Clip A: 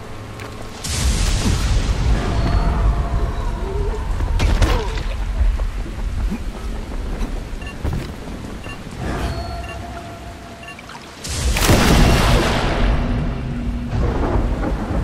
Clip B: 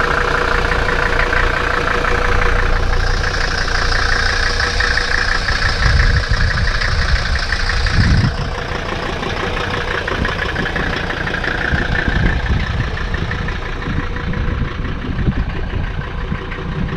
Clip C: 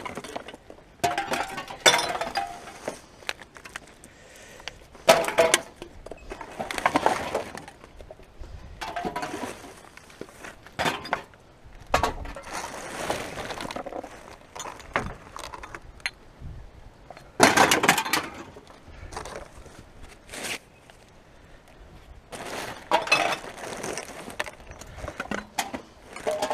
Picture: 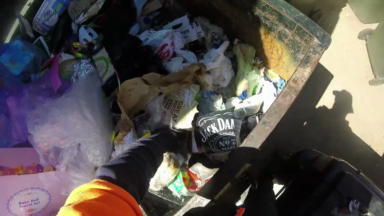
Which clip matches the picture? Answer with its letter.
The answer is C